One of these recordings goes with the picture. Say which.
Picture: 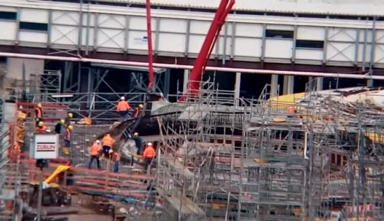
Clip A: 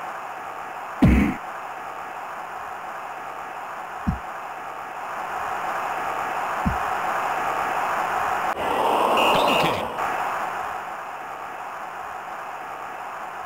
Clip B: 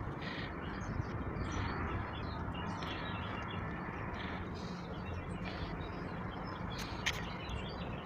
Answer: B